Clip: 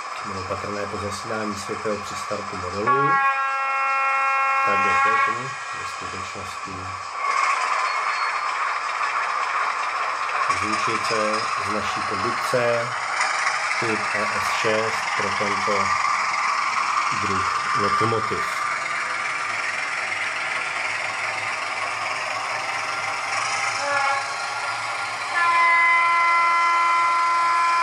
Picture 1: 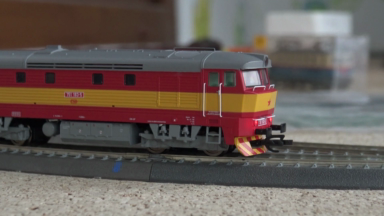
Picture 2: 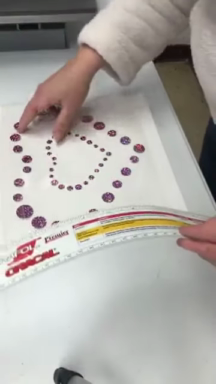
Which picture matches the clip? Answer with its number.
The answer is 1